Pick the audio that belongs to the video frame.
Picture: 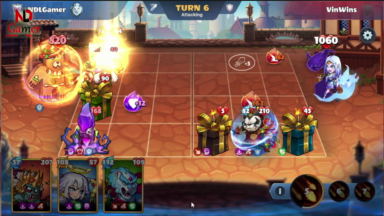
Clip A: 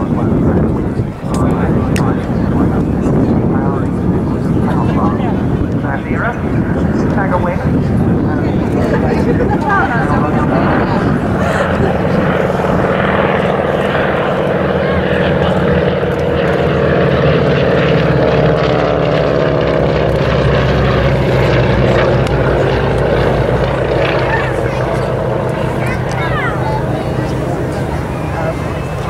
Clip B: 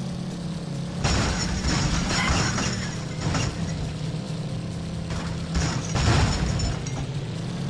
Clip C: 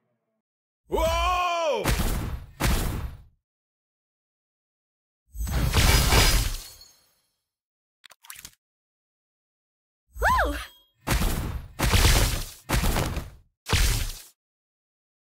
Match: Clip C